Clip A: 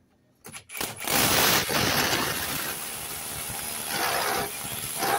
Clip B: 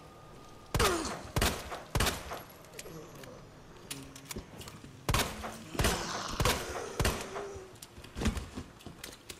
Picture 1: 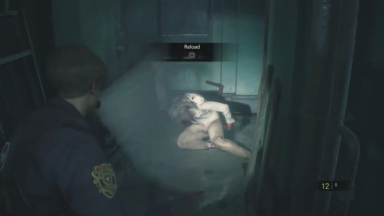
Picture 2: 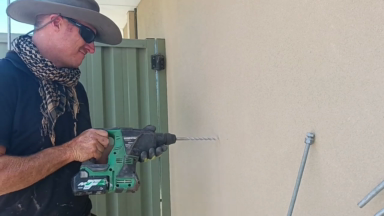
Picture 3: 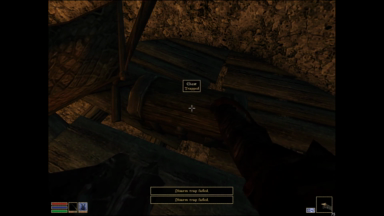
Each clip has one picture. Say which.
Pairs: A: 2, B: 1